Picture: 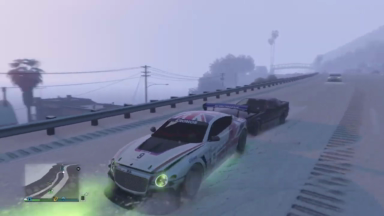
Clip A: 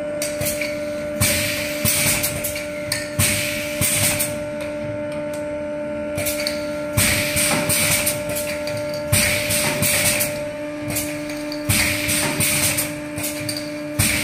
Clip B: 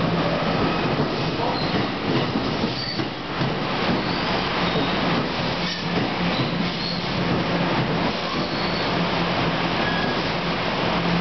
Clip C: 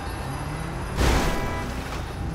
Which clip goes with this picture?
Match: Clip C